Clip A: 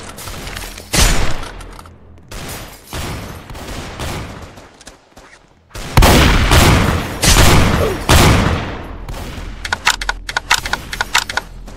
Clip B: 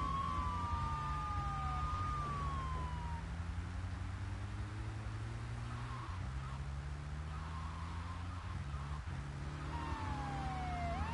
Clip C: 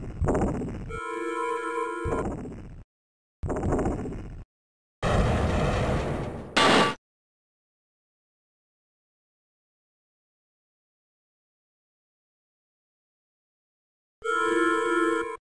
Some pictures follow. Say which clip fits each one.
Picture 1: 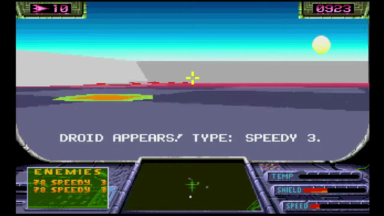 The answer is C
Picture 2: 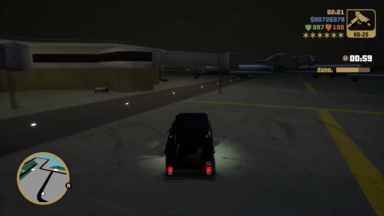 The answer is B